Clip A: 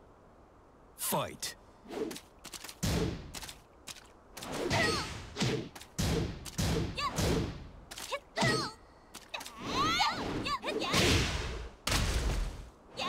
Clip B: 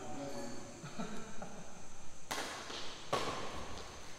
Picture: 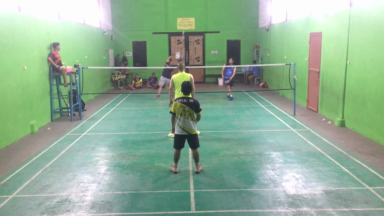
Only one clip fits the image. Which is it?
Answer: B